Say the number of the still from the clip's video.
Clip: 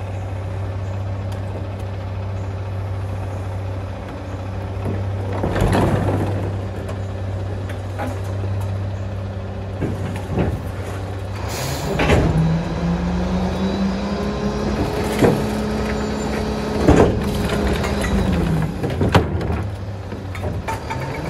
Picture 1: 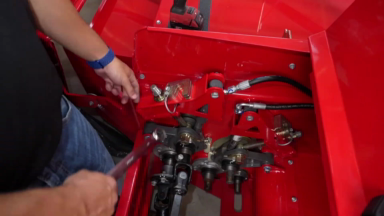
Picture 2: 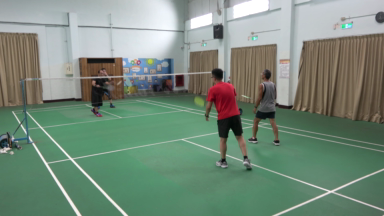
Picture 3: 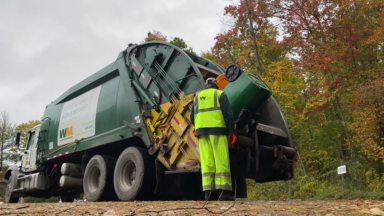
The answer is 3